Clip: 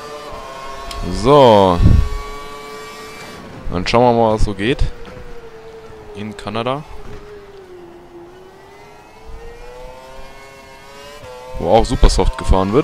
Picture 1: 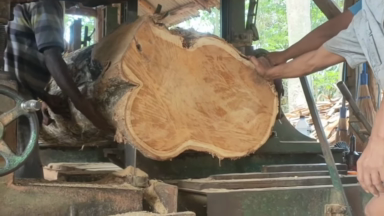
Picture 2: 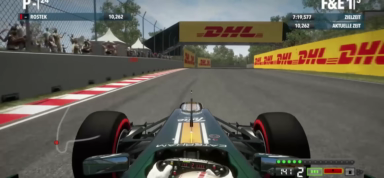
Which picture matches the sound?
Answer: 2